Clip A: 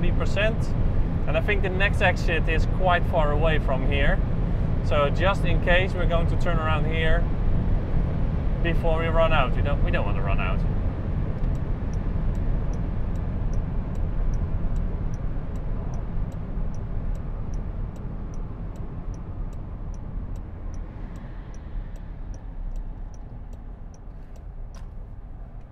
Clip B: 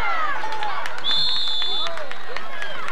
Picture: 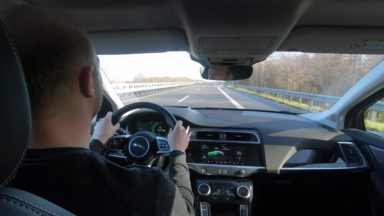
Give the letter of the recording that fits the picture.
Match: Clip A